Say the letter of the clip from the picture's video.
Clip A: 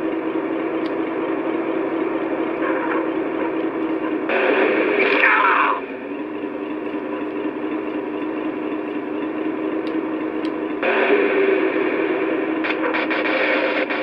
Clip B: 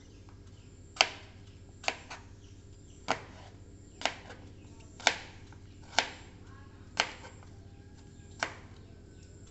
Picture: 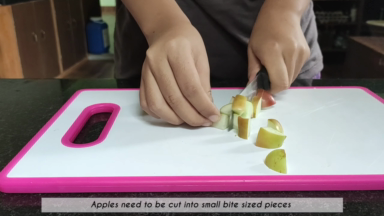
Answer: B